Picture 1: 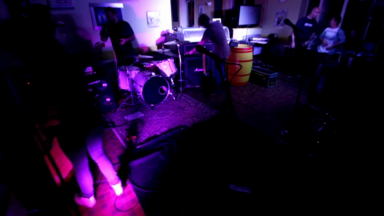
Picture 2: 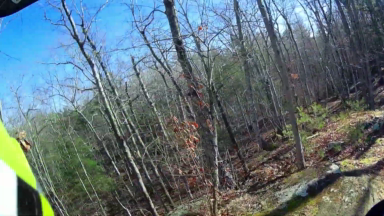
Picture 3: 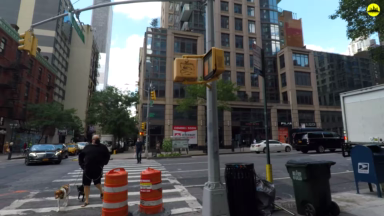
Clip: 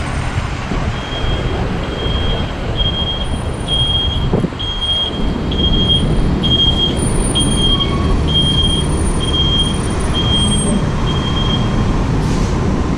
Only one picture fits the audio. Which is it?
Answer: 3